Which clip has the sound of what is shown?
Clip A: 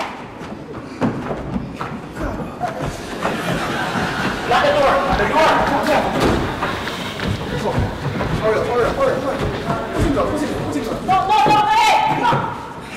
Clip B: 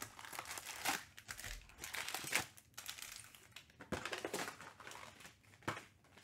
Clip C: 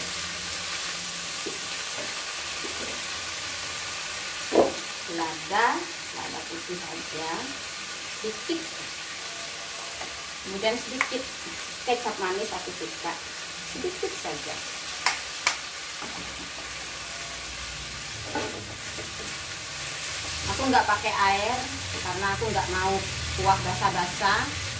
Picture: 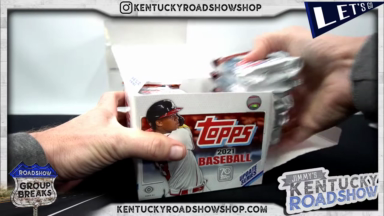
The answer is B